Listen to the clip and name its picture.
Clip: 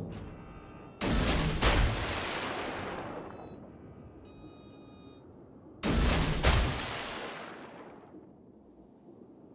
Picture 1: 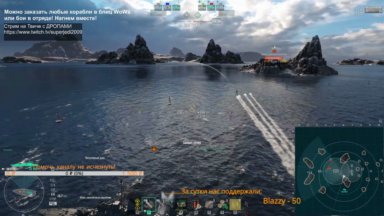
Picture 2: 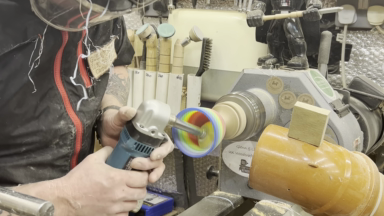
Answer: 1